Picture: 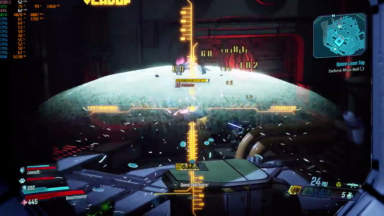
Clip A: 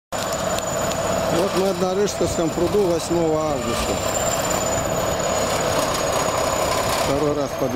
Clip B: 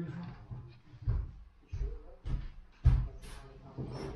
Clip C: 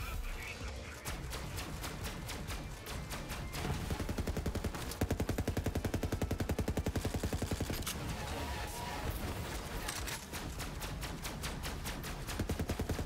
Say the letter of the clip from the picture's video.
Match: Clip C